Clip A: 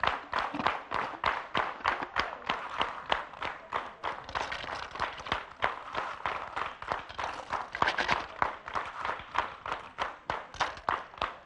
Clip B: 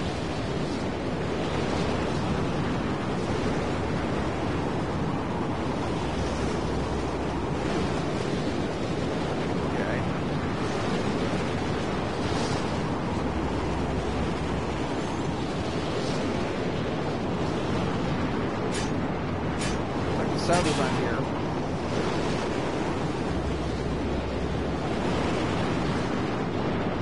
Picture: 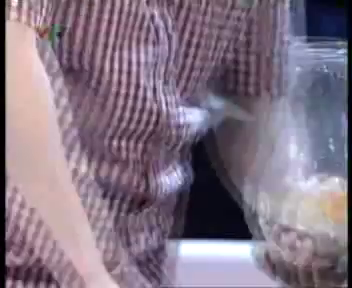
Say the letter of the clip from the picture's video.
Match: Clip A